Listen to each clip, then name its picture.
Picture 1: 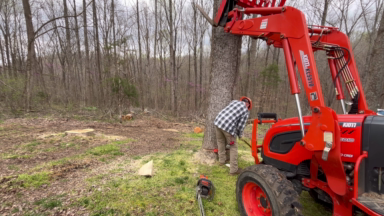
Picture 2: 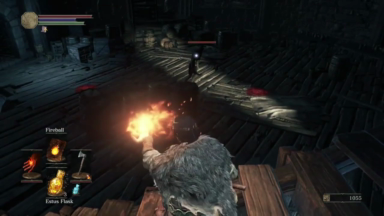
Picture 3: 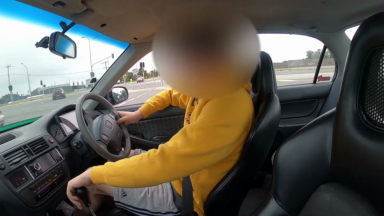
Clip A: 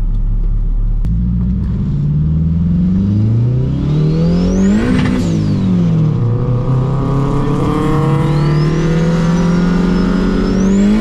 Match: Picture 3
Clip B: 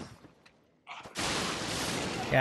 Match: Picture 2